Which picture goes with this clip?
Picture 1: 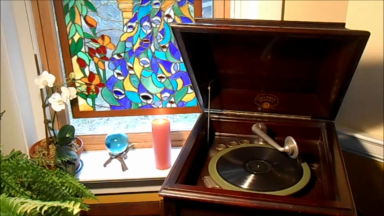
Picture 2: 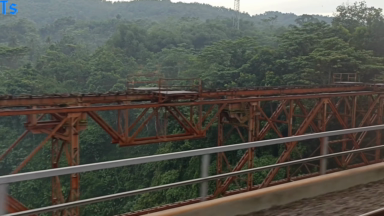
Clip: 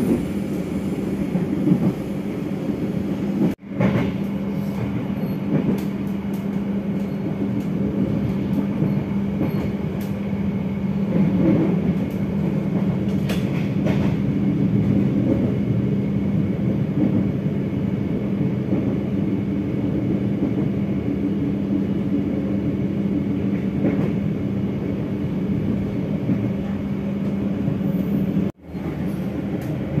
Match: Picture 2